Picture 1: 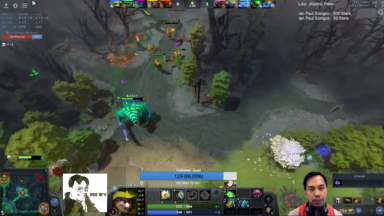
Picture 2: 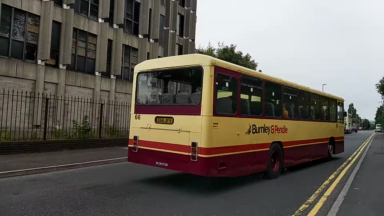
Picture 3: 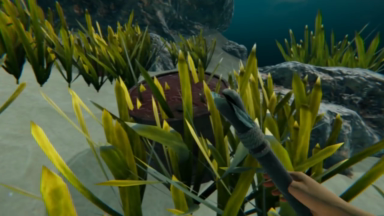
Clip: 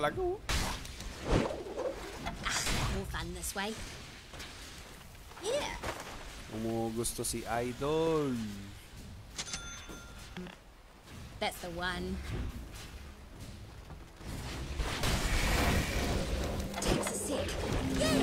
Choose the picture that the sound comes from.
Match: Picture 1